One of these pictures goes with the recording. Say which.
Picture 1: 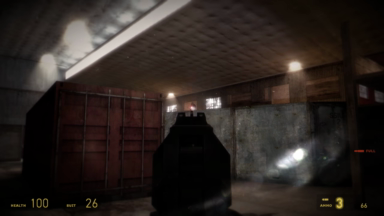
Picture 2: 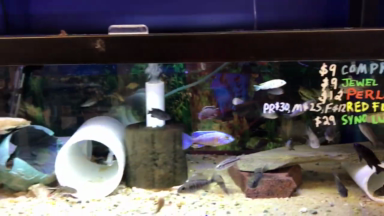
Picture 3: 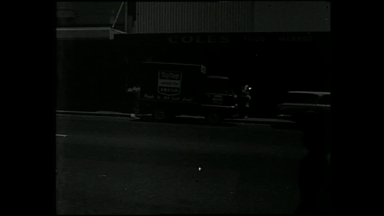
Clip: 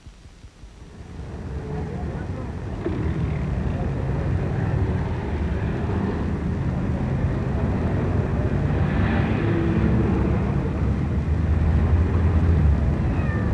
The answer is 3